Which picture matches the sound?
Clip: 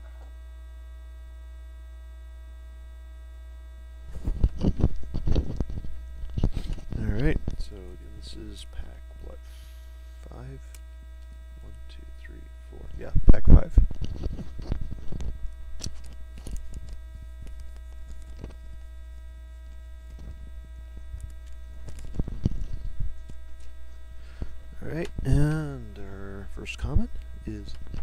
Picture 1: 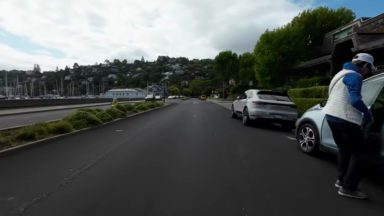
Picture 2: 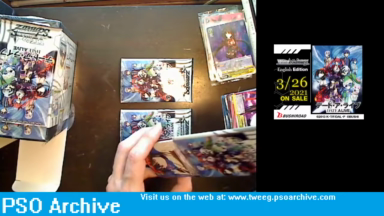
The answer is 2